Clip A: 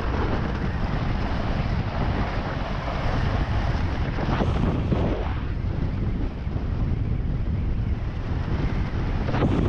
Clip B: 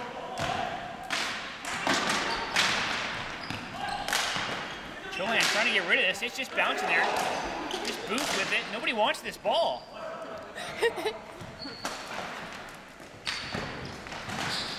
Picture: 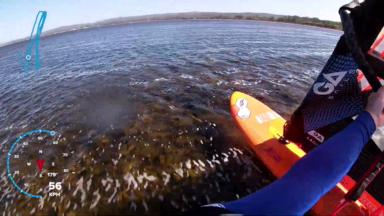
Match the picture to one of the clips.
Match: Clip A